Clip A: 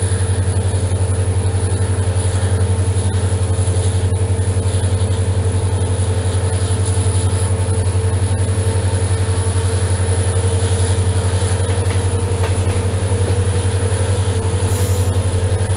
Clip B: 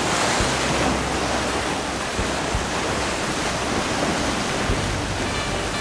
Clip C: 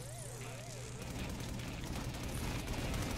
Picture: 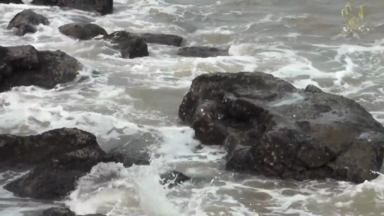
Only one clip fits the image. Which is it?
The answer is B